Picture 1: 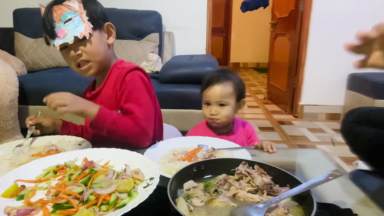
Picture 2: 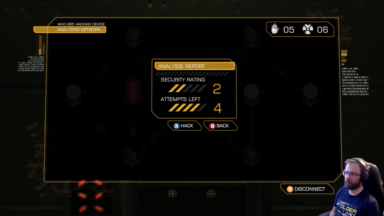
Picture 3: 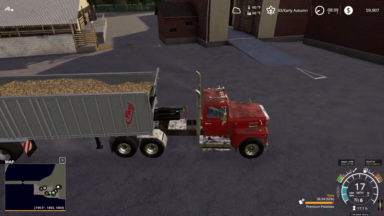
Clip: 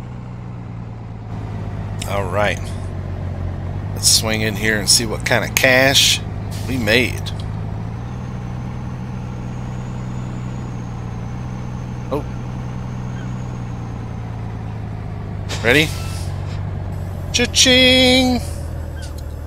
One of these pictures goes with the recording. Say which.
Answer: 3